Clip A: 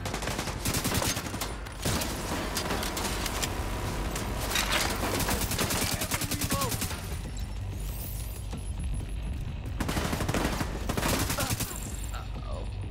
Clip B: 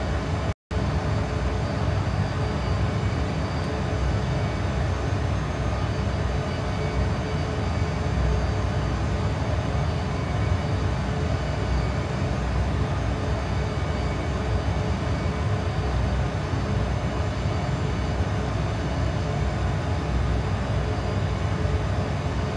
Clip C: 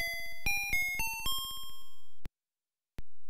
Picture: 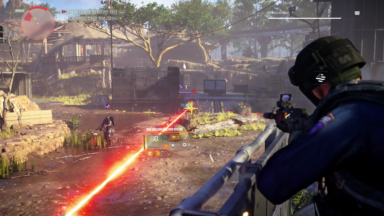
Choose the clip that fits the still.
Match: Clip A